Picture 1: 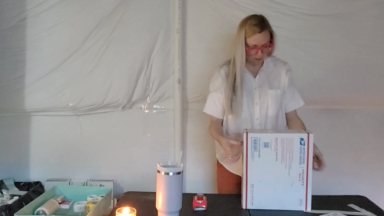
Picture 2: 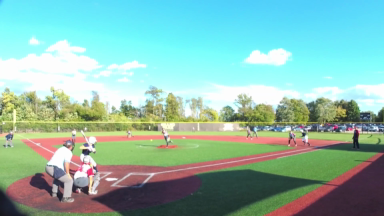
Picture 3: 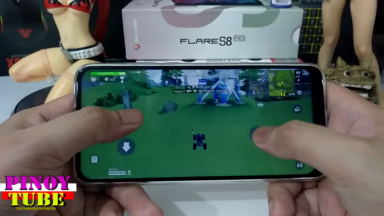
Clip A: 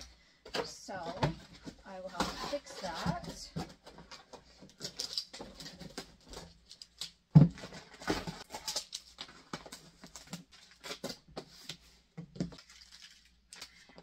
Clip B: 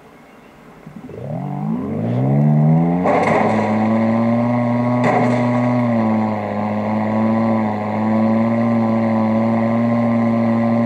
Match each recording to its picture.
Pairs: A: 1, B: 3